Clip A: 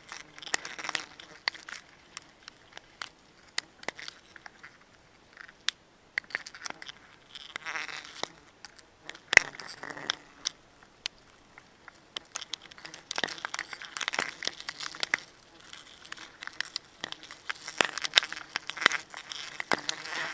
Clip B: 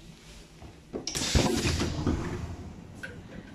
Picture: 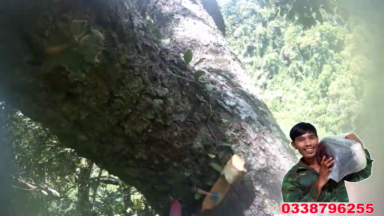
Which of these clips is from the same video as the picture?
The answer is A